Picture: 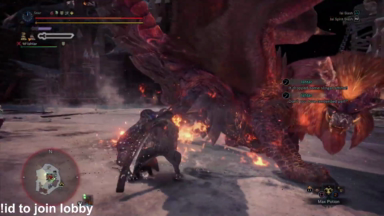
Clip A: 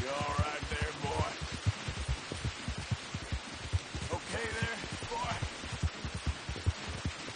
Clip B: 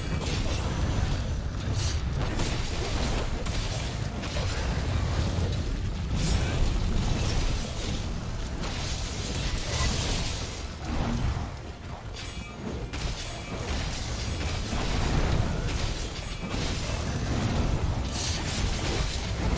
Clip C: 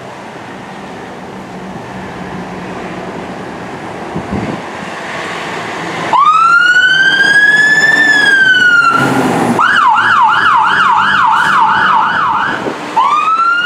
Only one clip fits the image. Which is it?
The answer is B